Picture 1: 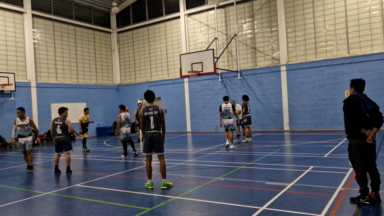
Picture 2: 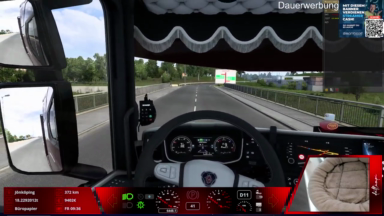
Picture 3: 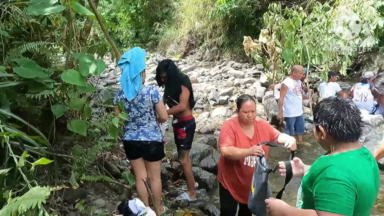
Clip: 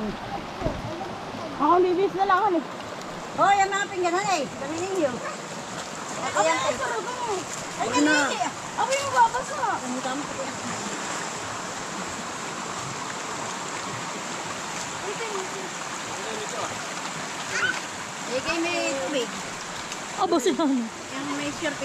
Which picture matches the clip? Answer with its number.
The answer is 3